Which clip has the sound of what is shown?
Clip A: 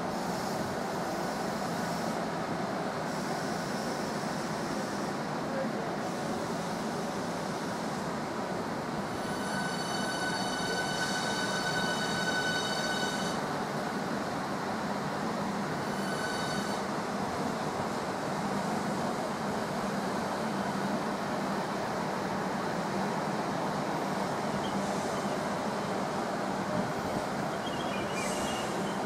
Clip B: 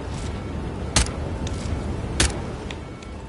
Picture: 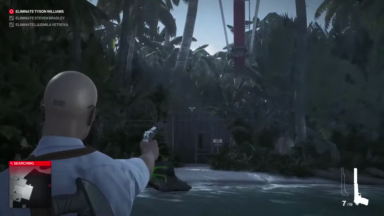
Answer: B